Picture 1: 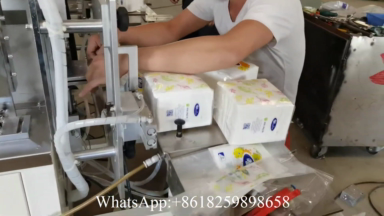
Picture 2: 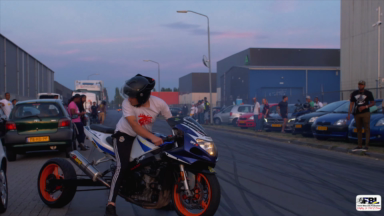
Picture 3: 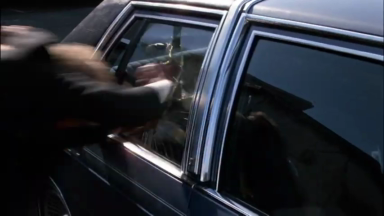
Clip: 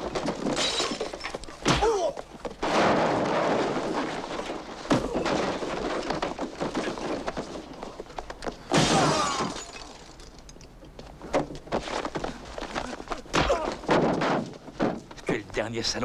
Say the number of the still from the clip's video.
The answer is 3